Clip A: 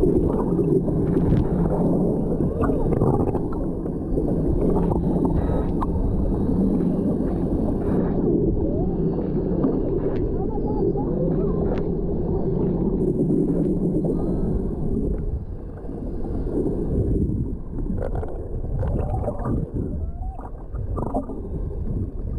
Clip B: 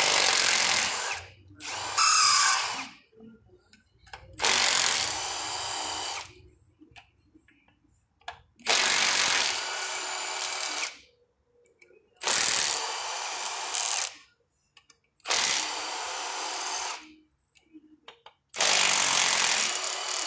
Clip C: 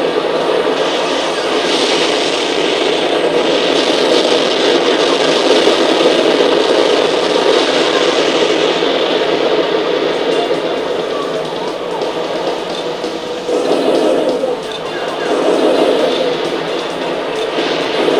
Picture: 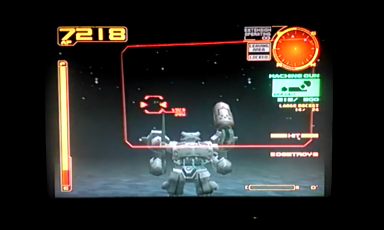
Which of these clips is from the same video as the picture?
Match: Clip C